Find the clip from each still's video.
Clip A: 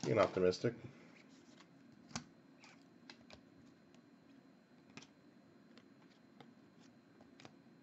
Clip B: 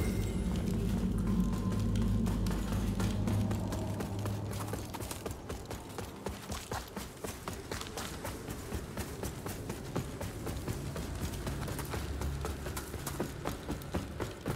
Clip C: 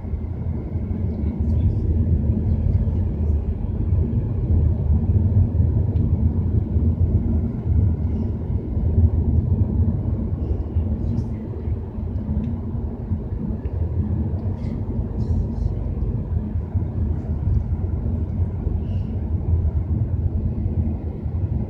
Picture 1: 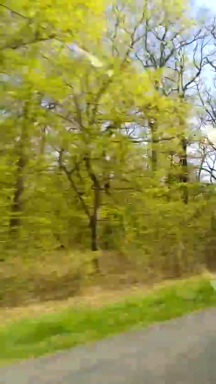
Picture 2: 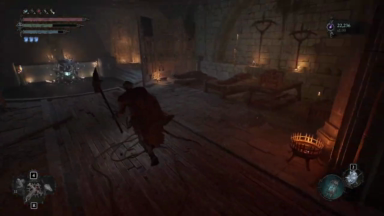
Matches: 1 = C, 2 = B